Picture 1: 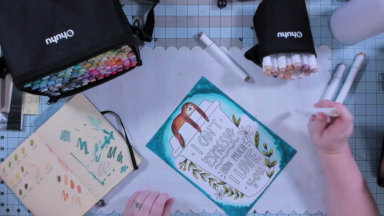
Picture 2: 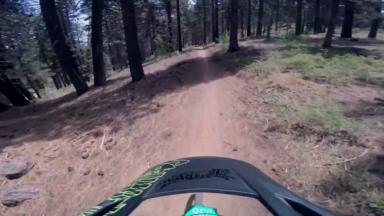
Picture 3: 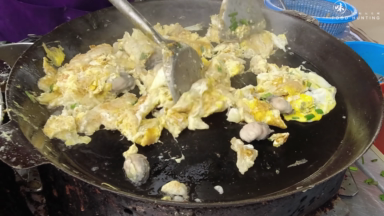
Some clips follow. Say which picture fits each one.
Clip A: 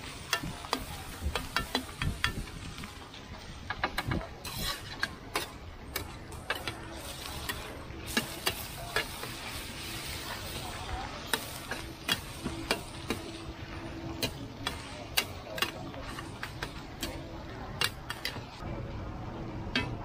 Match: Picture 3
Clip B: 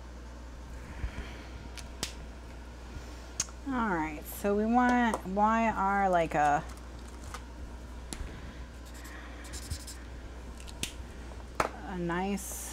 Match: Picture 1